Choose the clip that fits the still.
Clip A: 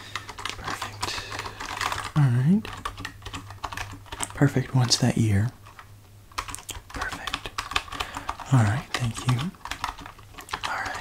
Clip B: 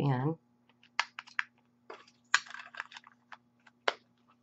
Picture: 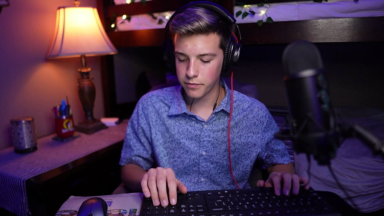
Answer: A